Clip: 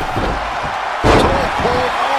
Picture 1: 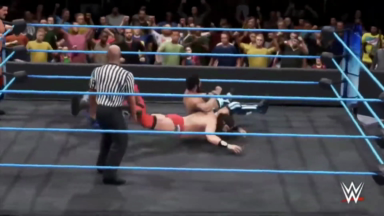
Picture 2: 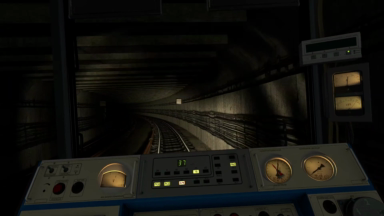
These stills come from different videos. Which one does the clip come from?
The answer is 1